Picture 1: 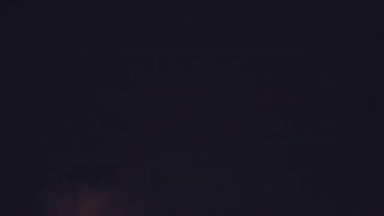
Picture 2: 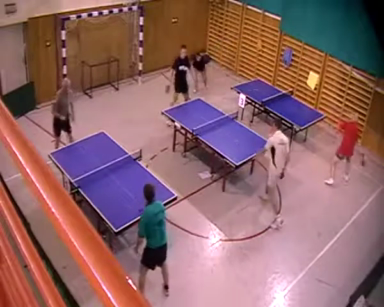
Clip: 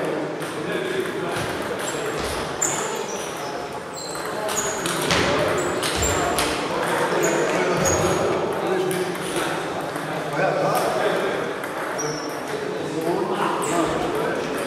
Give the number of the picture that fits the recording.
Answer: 2